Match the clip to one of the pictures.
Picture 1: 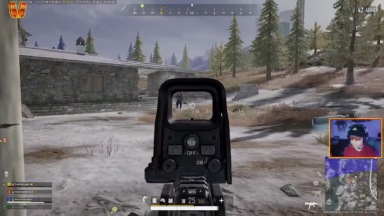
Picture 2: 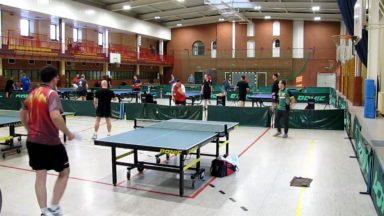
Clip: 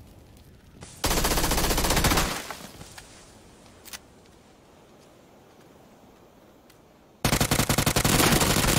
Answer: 1